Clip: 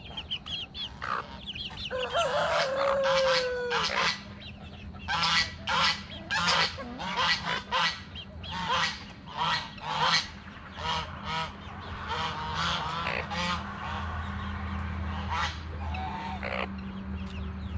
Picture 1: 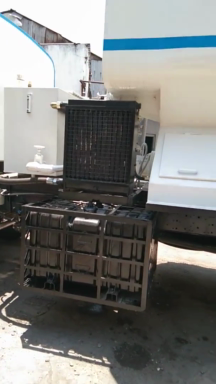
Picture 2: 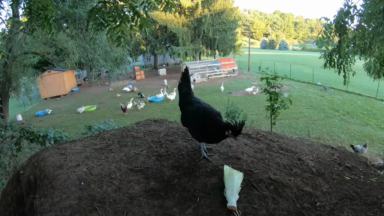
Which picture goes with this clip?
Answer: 2